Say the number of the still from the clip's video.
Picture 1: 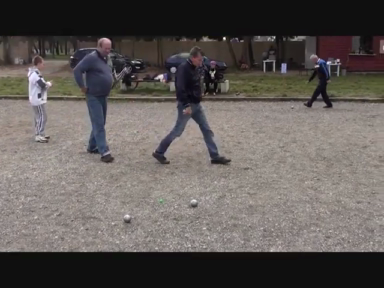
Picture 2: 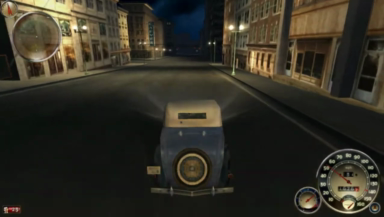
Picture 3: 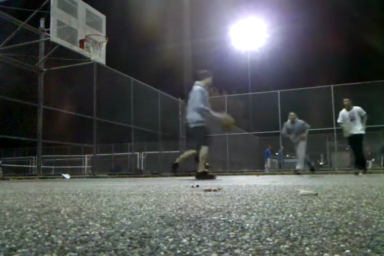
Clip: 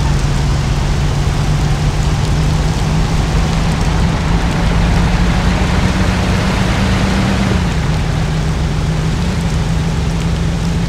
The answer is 2